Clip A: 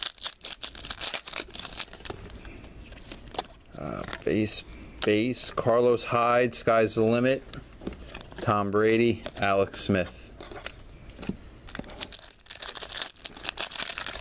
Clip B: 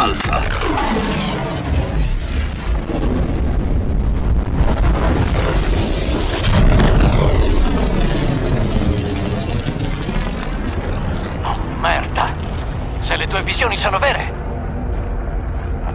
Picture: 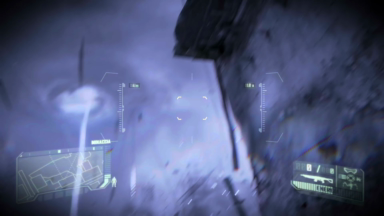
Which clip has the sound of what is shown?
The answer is B